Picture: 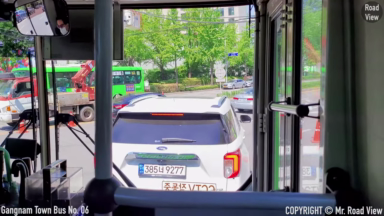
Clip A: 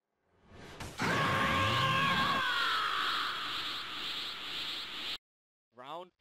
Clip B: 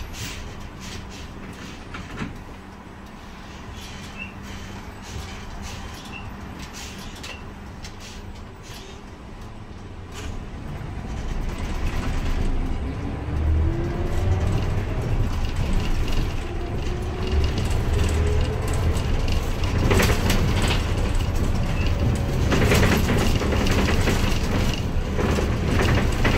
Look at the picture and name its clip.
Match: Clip B